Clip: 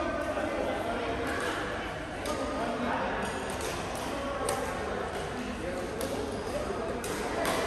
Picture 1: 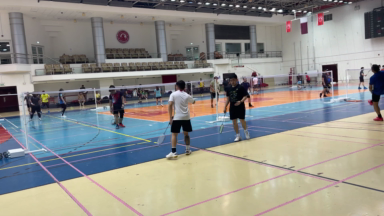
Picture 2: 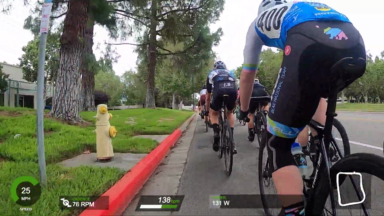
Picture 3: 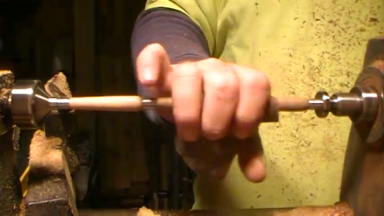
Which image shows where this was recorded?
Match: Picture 1